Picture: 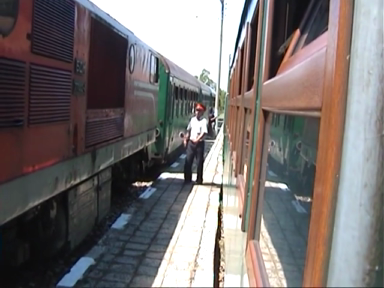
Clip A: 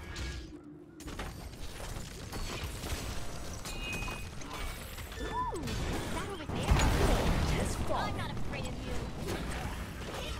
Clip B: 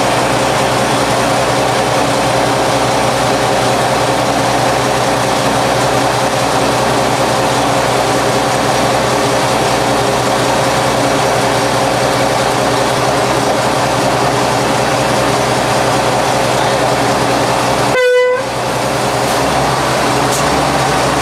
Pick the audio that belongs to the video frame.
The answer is B